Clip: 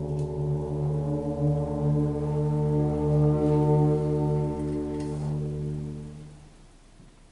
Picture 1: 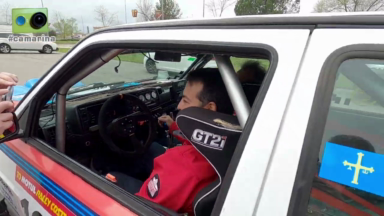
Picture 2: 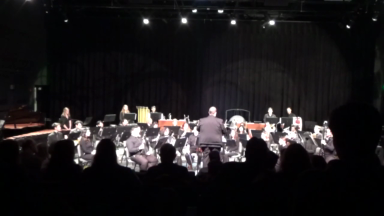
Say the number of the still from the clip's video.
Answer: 2